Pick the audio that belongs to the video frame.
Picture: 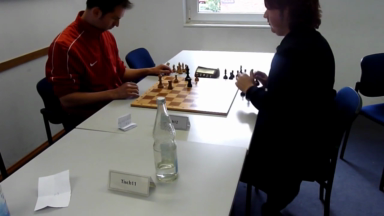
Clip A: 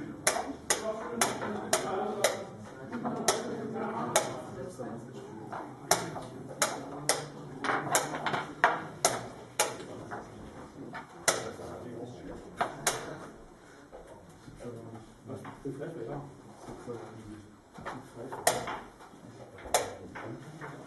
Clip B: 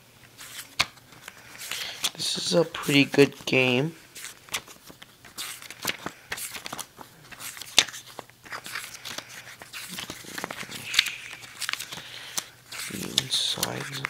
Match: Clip A